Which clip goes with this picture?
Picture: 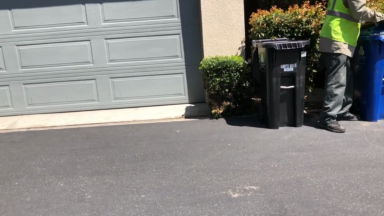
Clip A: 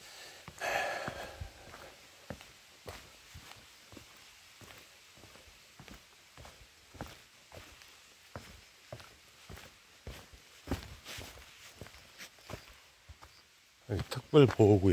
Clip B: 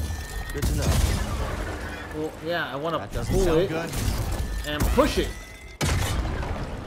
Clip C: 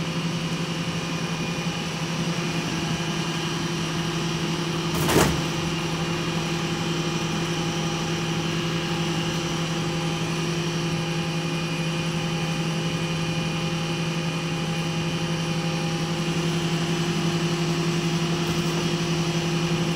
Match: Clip C